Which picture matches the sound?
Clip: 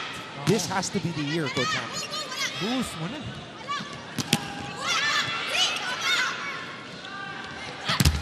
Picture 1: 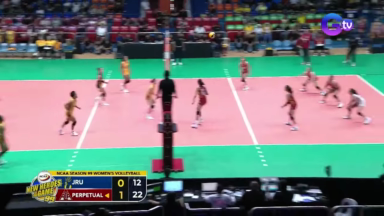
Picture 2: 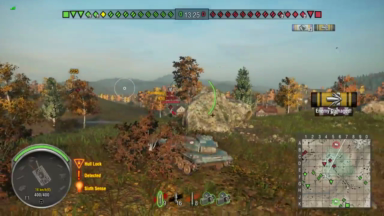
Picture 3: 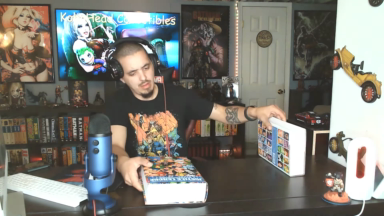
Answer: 1